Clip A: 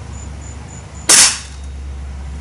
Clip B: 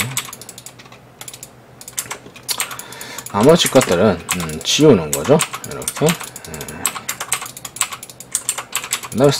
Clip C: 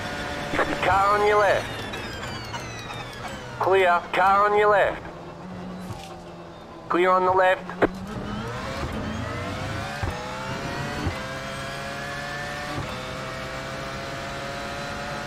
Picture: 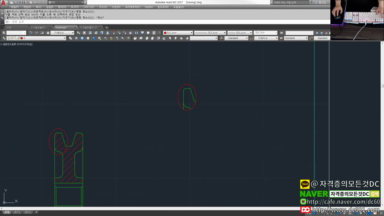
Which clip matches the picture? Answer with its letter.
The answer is B